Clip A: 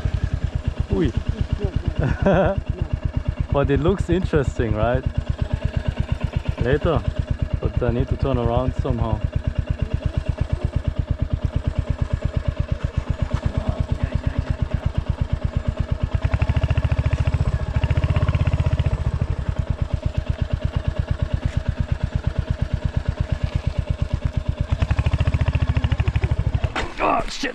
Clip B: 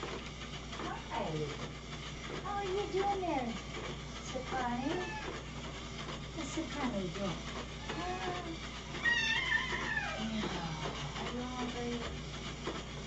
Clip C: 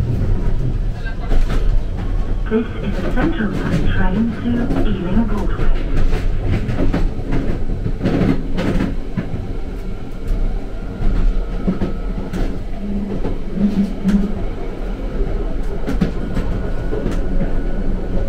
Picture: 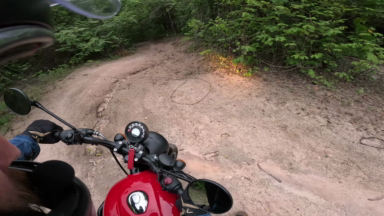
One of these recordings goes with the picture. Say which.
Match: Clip A